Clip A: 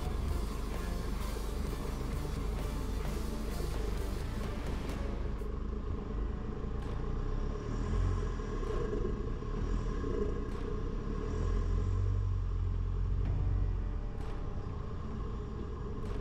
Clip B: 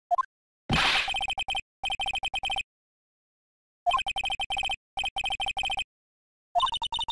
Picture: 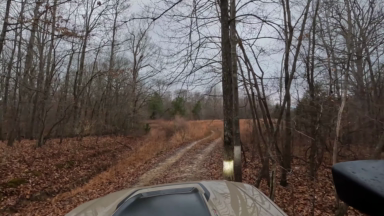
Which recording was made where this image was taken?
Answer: A